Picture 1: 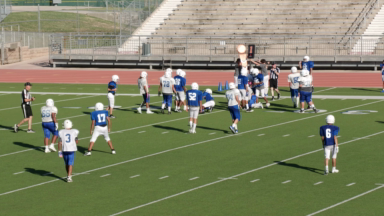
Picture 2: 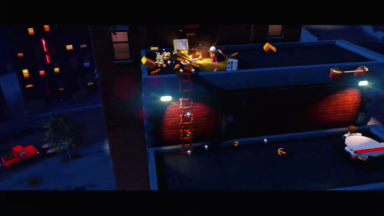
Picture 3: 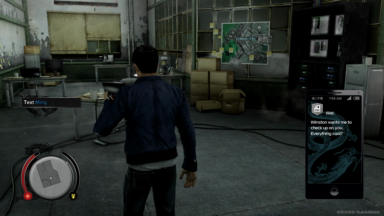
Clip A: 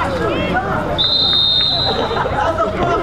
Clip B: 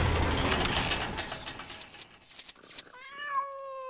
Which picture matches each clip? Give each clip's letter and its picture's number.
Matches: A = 1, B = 2